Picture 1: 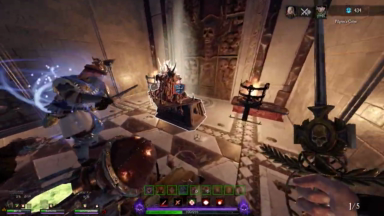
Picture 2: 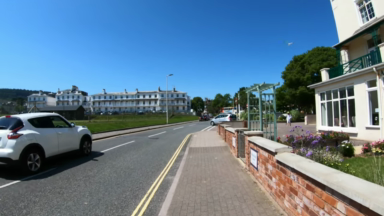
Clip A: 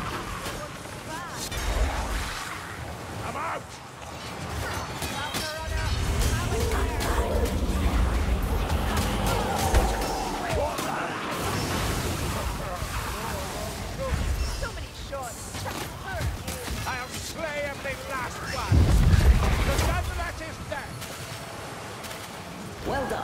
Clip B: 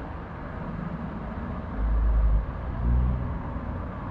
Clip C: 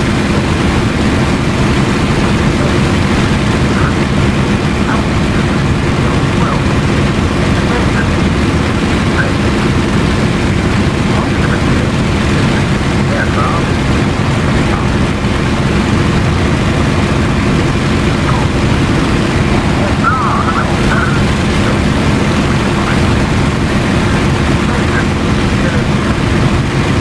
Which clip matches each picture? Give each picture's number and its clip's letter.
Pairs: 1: A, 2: B